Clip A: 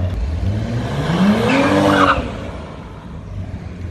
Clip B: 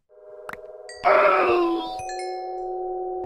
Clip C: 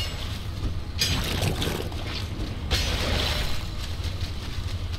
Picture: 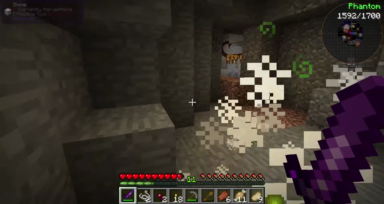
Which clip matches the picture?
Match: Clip B